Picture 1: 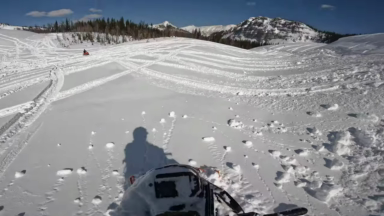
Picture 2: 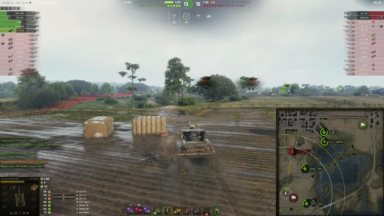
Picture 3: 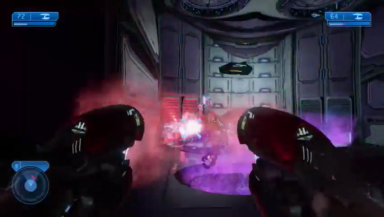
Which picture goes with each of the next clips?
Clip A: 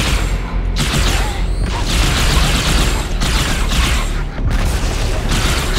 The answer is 3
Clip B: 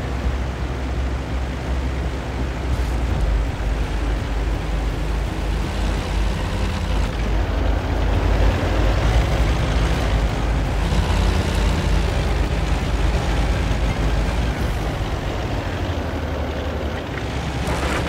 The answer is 2